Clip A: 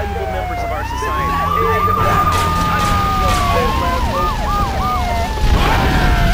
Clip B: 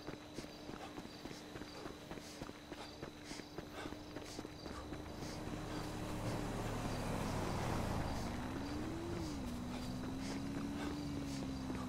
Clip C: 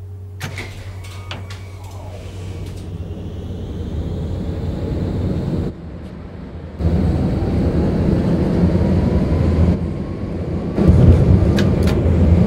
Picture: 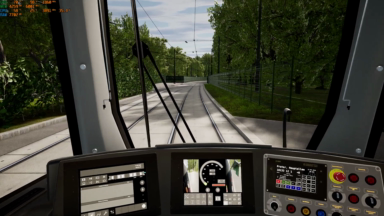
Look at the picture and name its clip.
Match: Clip C